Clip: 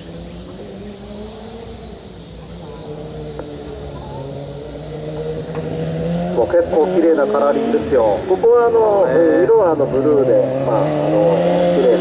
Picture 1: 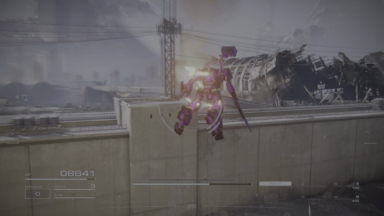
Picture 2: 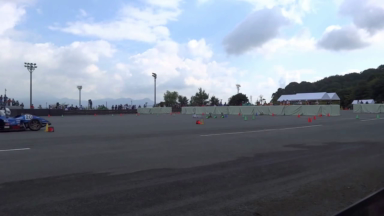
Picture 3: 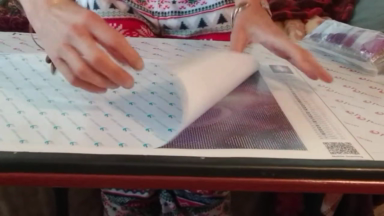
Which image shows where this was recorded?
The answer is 2